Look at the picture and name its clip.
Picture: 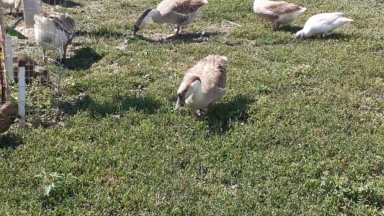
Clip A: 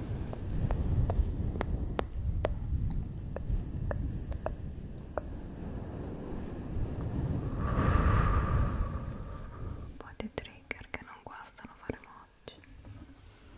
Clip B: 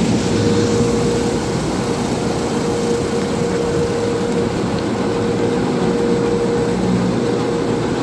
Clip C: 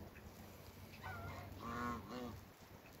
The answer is C